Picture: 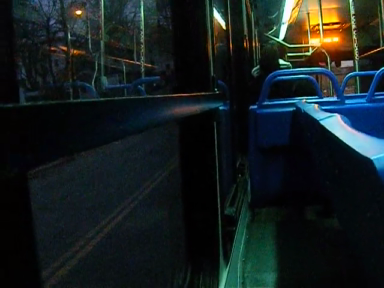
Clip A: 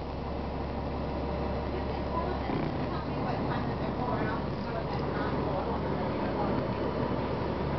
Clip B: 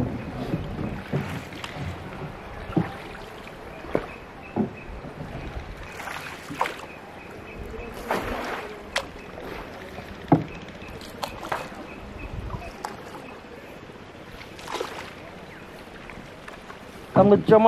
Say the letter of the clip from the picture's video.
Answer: A